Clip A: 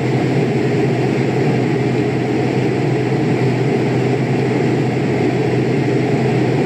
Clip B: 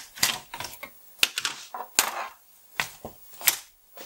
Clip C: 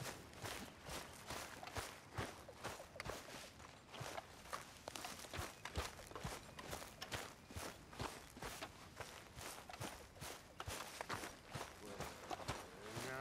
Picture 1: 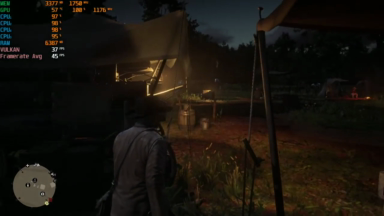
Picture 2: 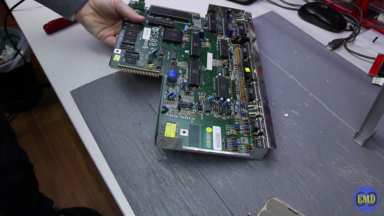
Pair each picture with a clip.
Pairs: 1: C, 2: B